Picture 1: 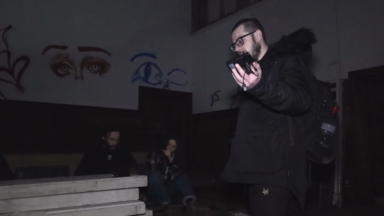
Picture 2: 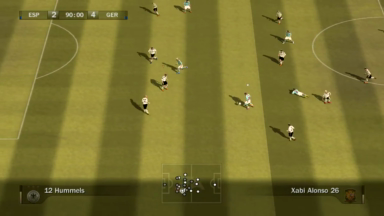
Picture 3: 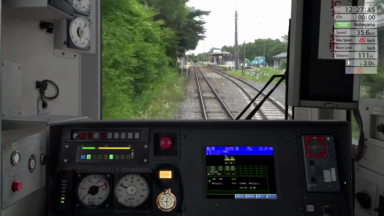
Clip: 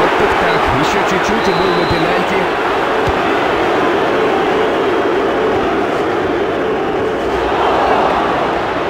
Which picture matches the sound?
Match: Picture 2